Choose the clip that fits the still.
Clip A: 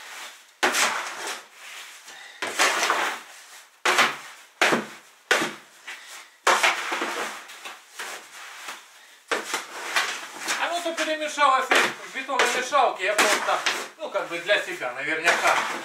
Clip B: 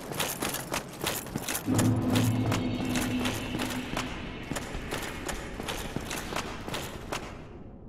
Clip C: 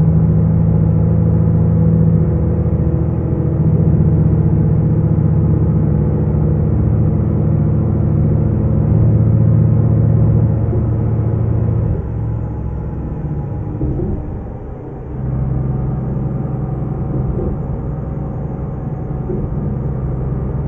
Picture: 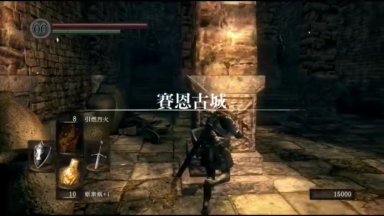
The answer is B